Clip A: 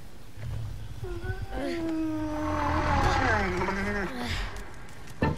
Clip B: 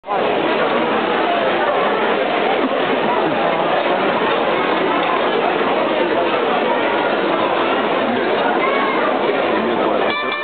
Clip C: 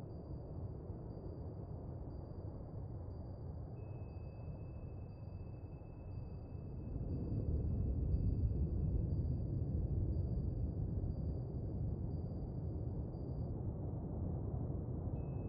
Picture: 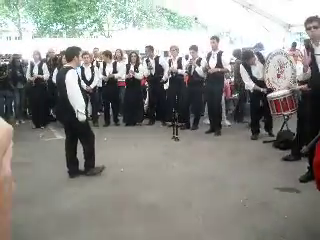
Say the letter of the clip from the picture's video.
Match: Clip B